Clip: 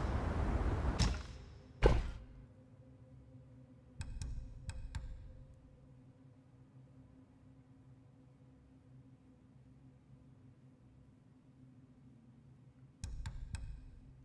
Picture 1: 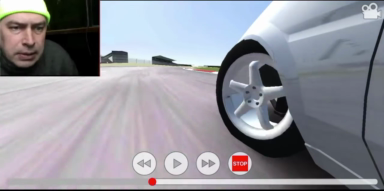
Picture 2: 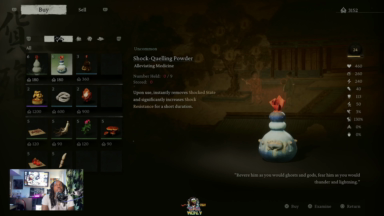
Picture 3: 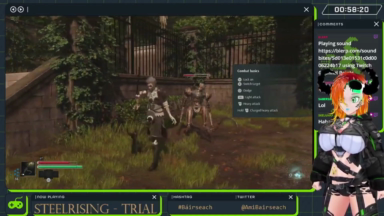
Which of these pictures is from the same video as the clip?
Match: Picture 2